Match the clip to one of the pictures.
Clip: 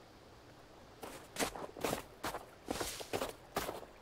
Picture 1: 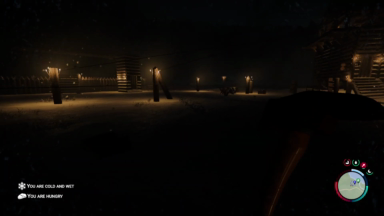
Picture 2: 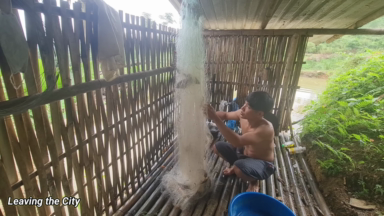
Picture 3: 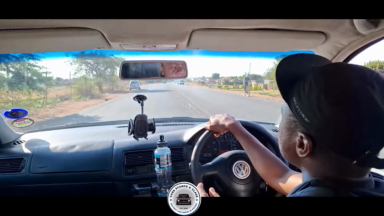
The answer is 1